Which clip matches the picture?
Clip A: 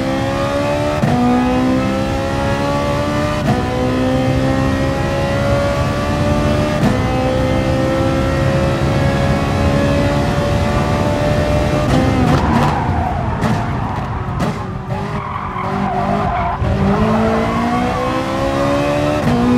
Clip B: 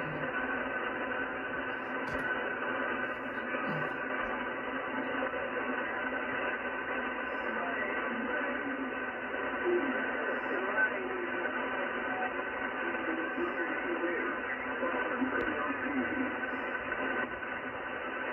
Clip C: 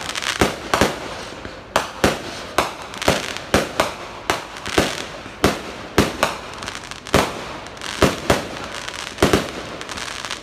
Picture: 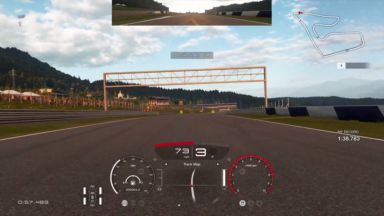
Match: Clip A